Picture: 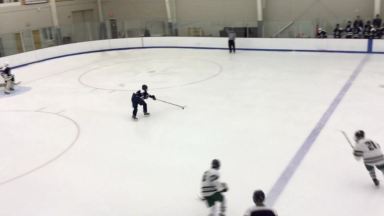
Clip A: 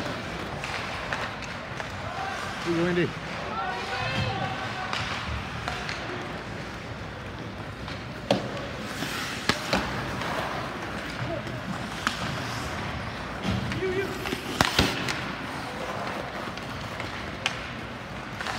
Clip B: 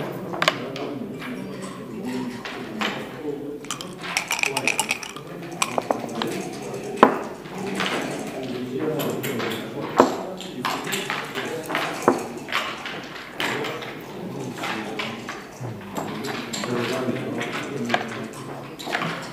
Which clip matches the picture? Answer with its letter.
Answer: A